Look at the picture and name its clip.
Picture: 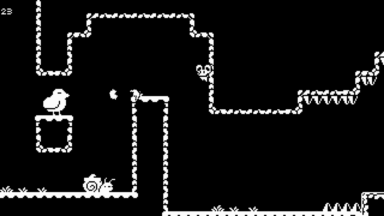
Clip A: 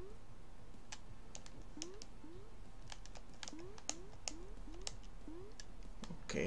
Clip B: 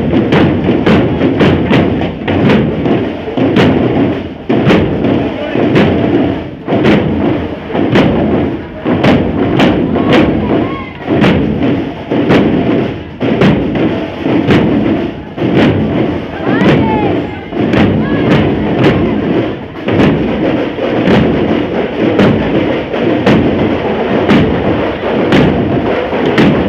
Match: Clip A